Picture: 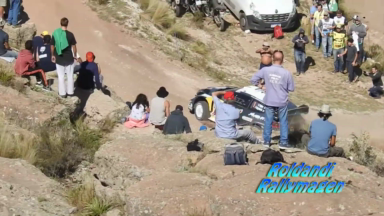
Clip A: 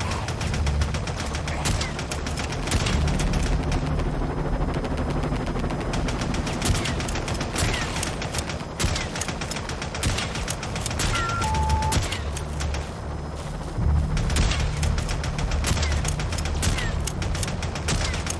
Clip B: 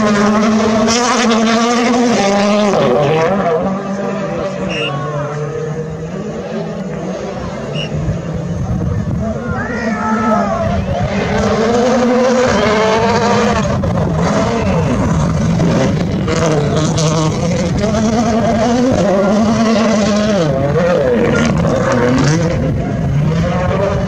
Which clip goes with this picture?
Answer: B